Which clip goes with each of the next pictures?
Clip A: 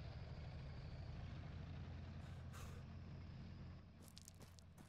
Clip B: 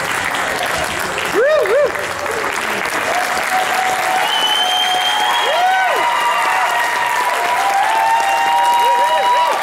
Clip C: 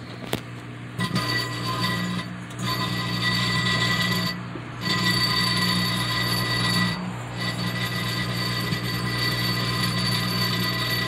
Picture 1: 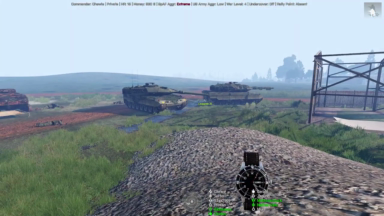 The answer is A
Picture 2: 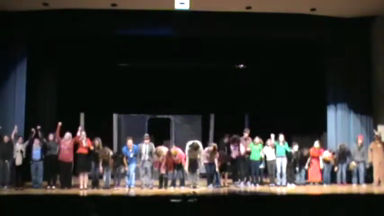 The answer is B